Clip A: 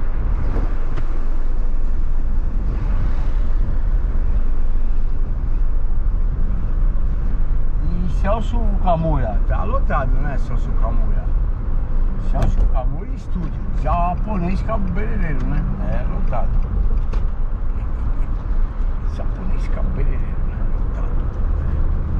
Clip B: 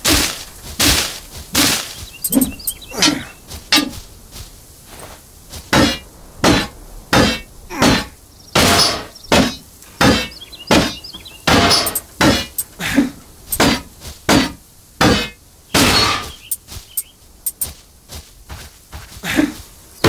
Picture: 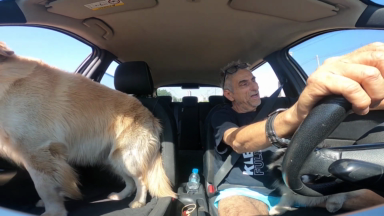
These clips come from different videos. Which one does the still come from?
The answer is A